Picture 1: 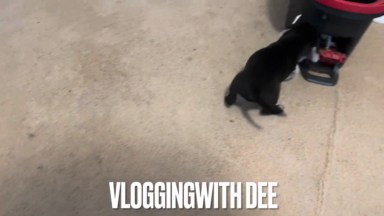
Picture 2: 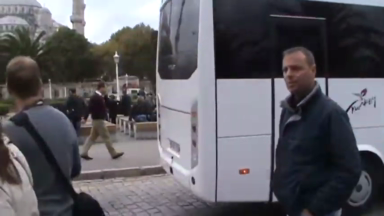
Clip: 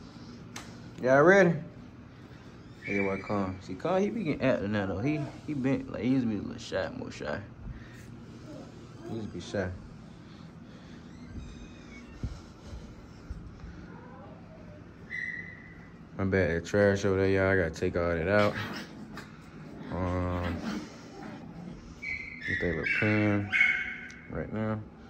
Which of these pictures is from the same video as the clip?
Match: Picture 1